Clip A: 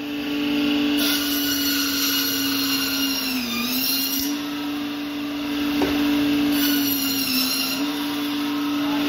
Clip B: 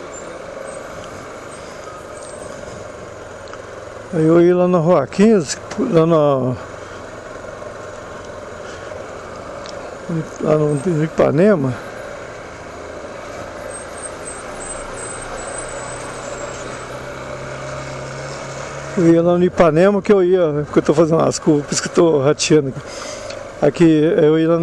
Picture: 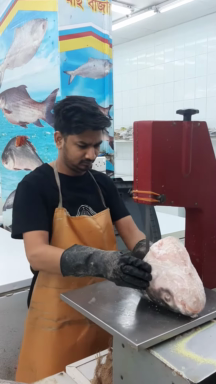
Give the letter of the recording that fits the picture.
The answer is A